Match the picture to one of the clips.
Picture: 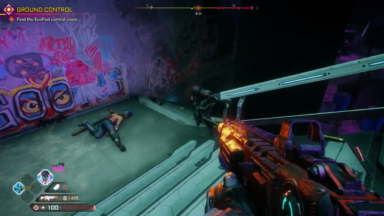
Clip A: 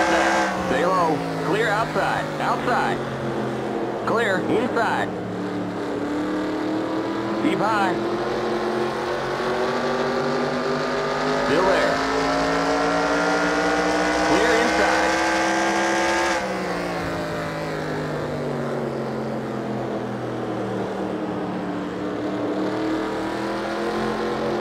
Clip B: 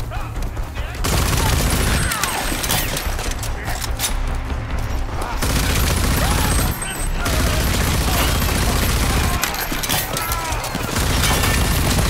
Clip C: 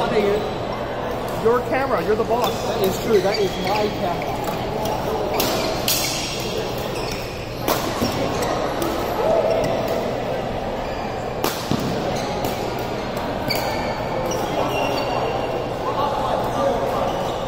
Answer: B